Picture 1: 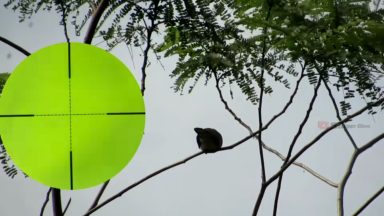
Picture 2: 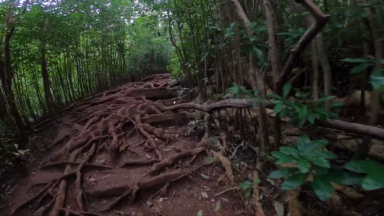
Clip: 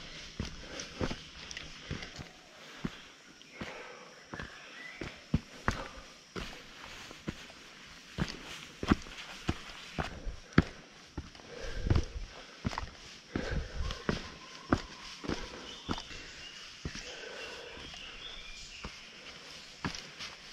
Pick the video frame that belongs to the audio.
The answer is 2